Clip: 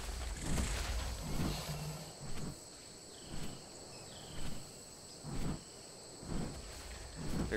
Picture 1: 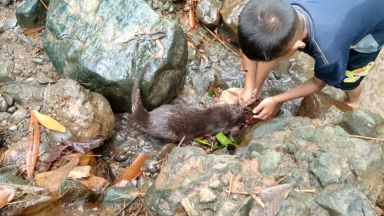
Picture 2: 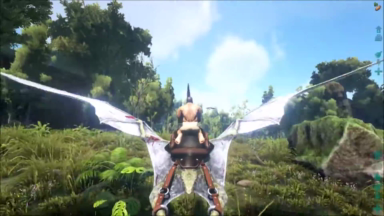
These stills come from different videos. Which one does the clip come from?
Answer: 2